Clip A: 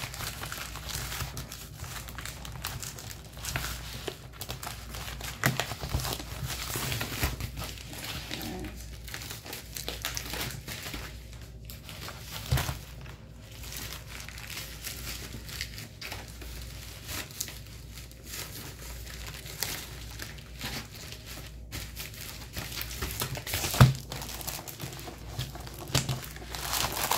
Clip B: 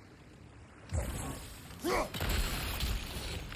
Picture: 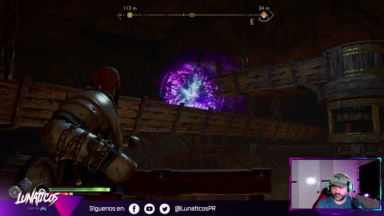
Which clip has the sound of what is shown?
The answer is B